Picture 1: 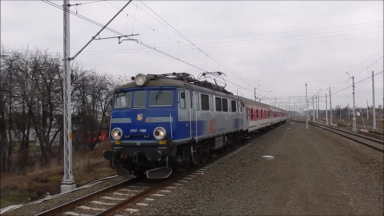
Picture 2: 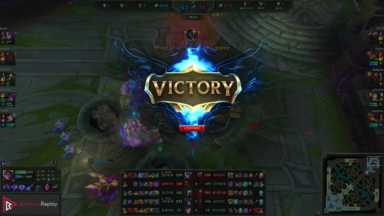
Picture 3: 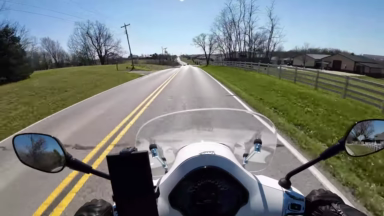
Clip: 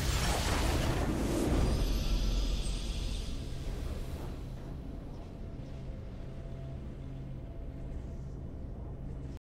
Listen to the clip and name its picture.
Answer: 2